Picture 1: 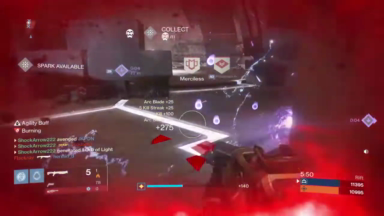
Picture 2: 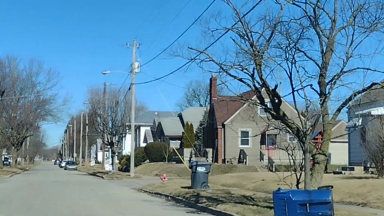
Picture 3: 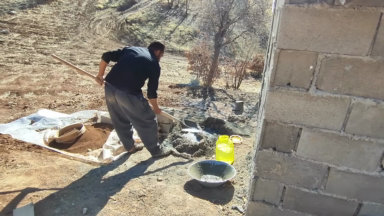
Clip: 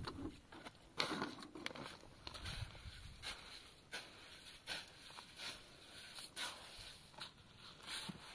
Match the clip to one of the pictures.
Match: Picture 3